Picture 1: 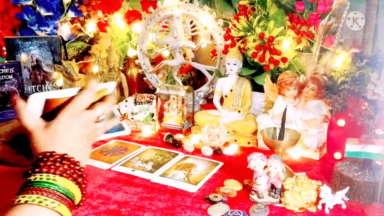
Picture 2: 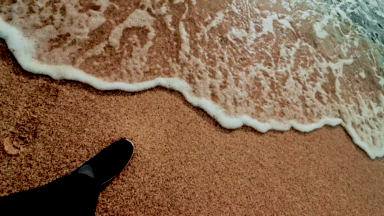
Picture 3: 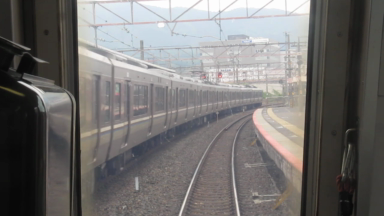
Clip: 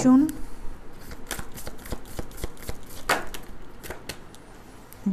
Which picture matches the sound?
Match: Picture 1